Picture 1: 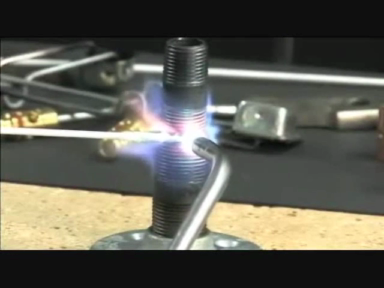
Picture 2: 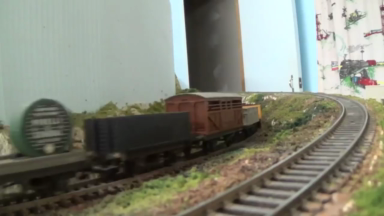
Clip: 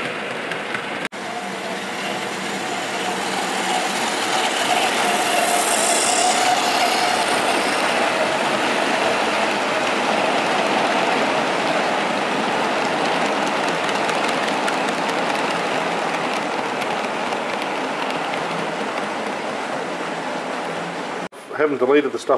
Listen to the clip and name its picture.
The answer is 2